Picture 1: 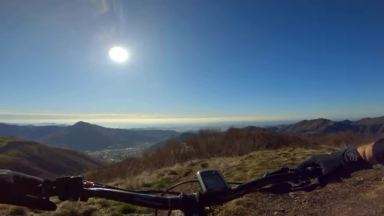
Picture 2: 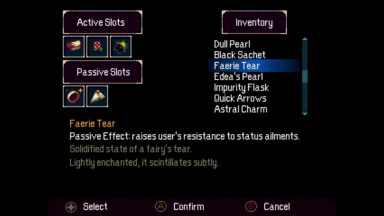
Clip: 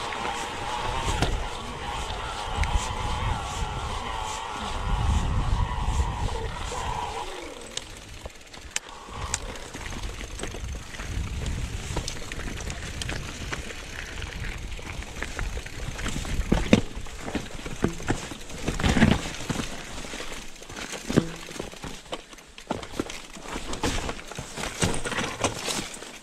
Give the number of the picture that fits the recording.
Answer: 1